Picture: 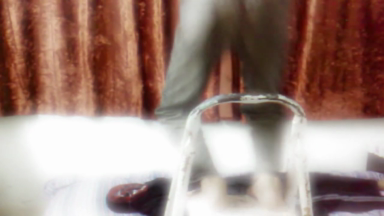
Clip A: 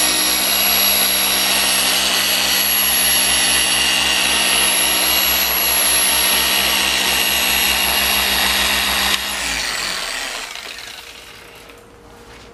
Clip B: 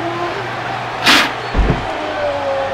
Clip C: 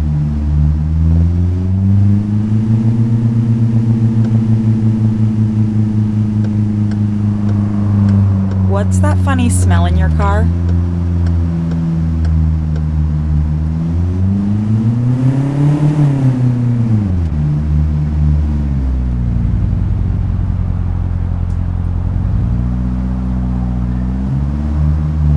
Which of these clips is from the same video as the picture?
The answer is B